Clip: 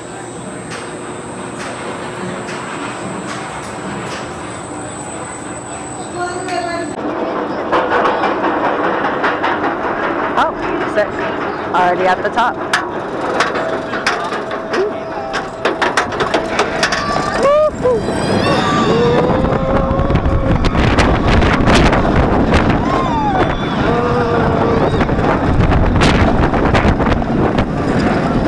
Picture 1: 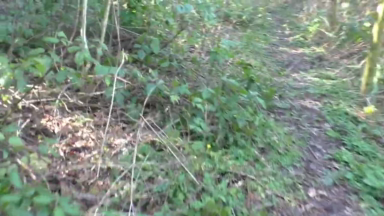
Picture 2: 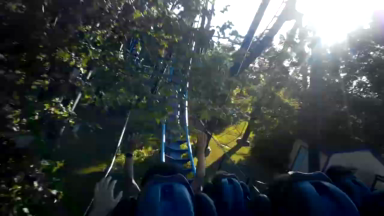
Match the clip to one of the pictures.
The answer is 2